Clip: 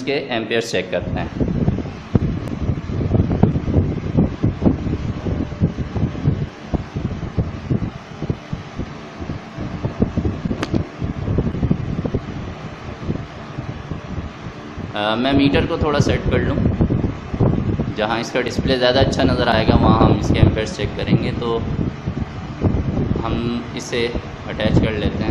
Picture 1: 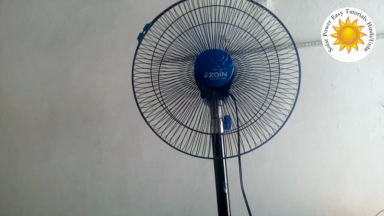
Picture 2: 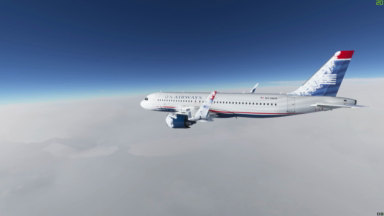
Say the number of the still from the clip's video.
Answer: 1